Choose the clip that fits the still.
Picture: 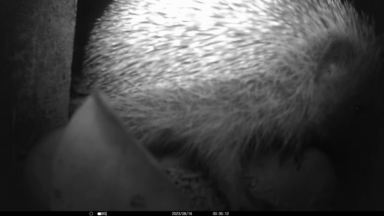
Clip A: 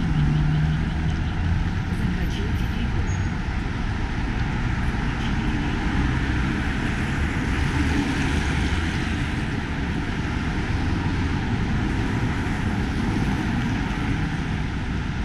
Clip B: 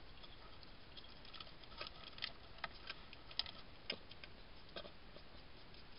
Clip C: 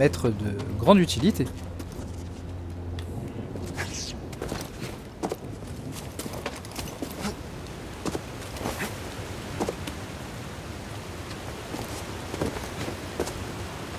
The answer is B